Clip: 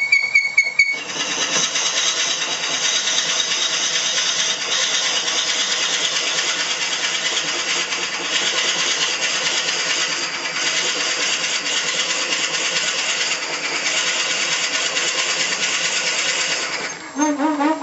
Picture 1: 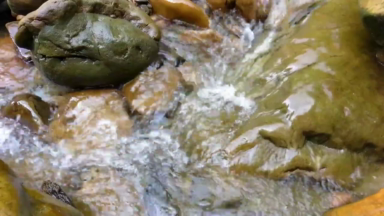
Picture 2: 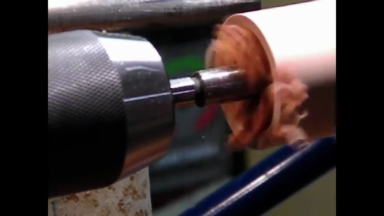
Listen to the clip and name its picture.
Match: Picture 2